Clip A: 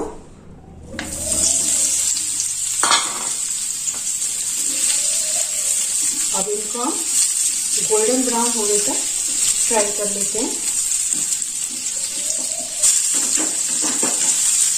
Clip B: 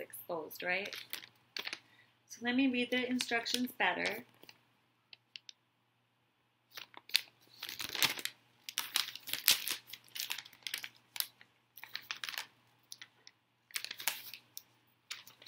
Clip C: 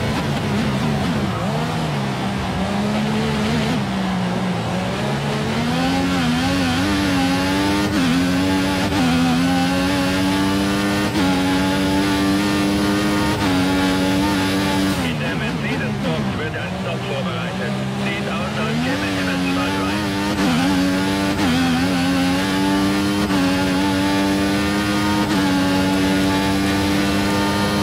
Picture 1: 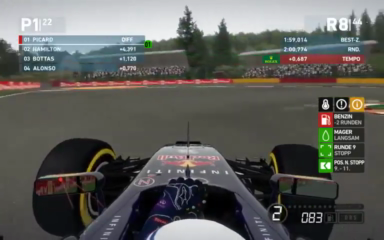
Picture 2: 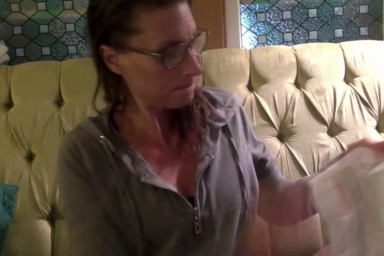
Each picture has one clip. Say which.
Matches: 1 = C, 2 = B